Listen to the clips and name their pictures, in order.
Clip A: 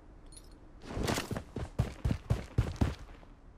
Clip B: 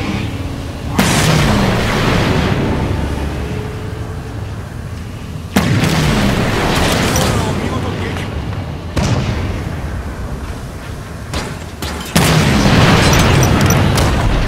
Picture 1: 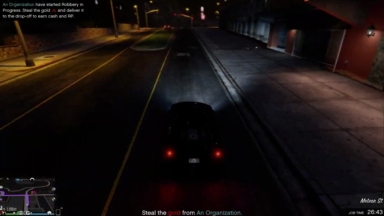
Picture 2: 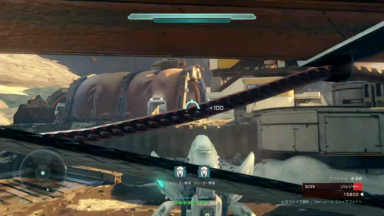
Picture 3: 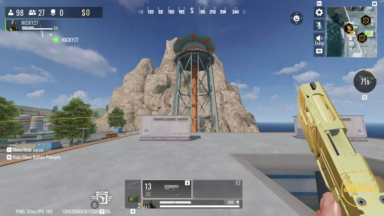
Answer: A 3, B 2